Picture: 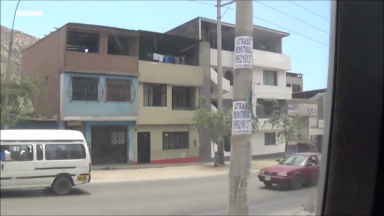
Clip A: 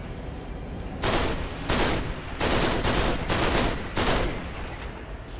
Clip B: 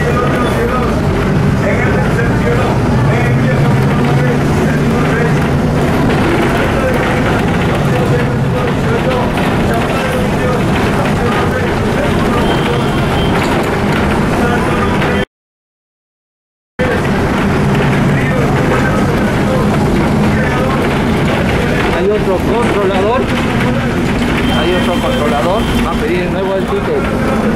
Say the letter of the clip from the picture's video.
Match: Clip B